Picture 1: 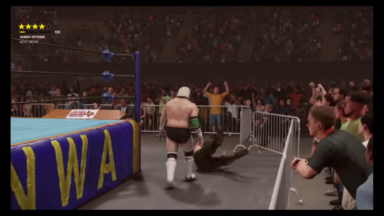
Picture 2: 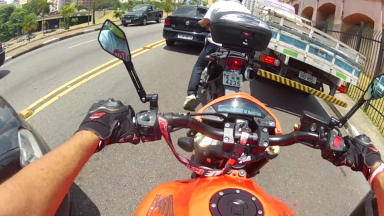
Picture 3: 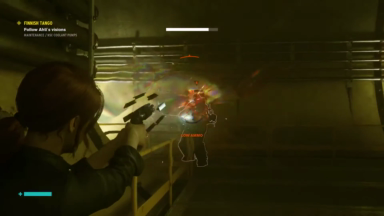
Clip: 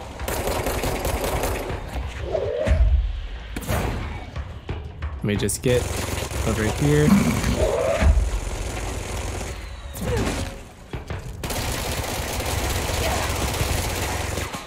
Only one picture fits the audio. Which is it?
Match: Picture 3